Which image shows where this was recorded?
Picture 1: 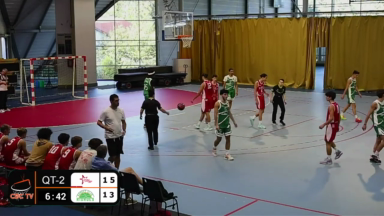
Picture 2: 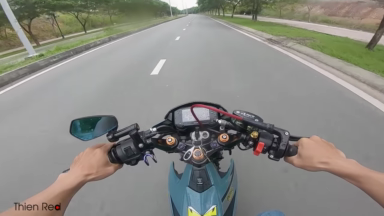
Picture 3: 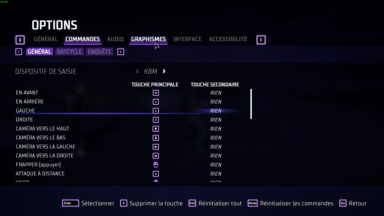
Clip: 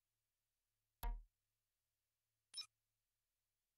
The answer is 3